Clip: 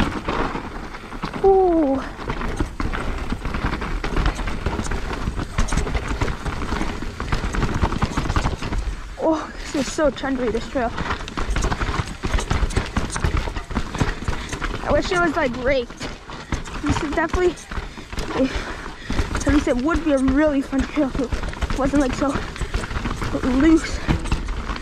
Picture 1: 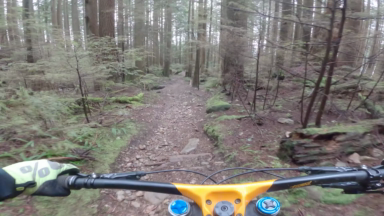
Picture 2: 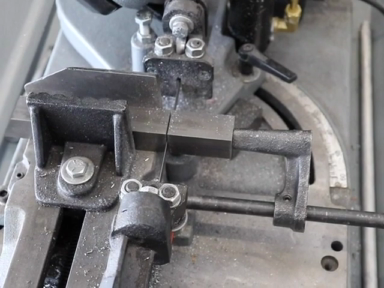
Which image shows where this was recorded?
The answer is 1